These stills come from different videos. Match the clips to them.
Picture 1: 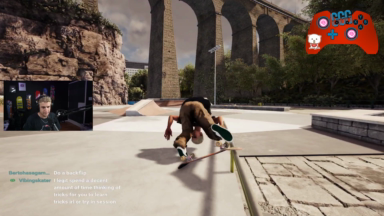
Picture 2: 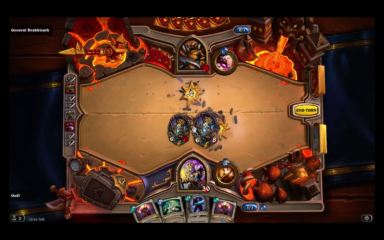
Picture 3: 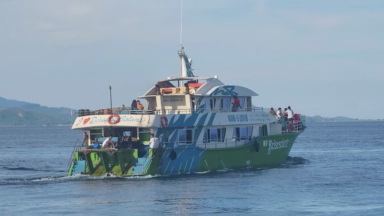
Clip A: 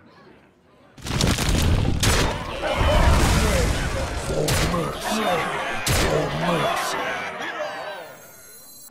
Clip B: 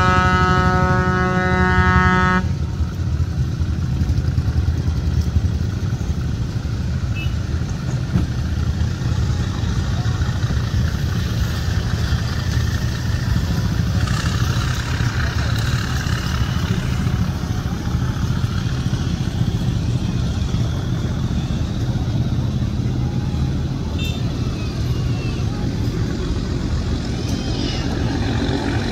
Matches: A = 2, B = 3